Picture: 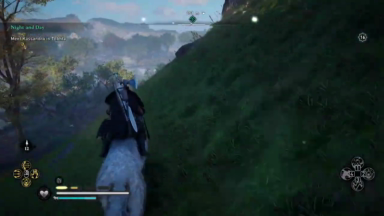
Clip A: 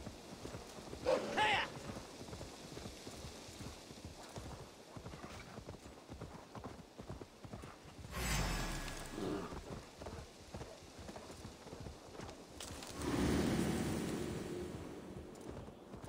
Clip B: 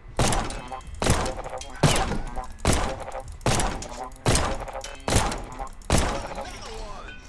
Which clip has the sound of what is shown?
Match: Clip A